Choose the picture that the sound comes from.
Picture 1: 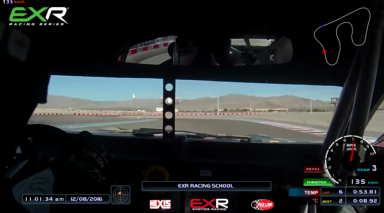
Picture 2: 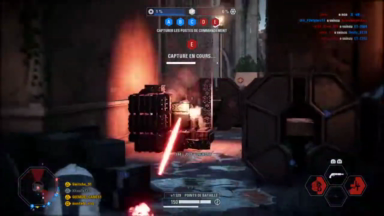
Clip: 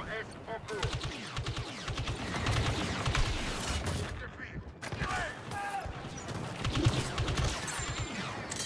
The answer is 2